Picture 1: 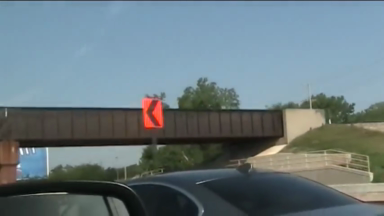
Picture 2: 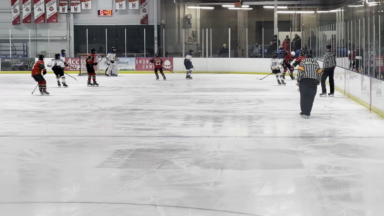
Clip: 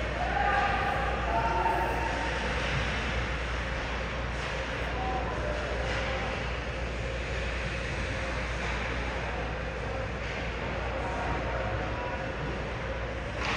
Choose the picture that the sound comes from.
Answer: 2